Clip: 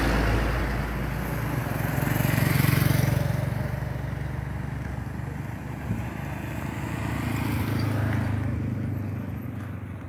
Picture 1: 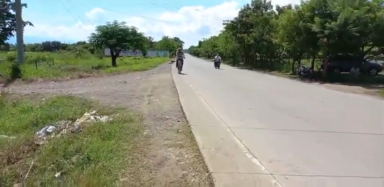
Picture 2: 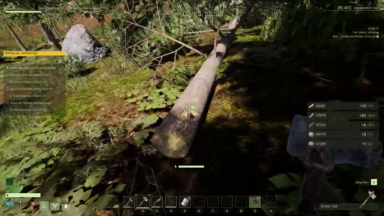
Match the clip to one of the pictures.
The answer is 1